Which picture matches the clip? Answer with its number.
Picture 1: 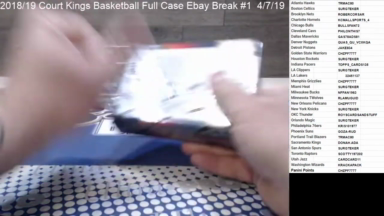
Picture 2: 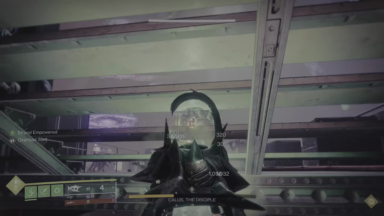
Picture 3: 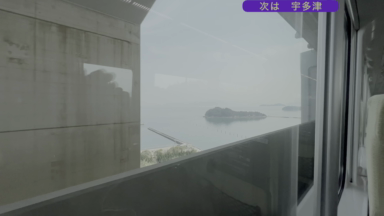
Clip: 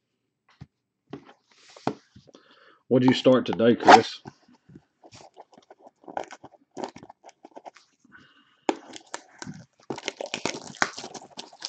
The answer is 1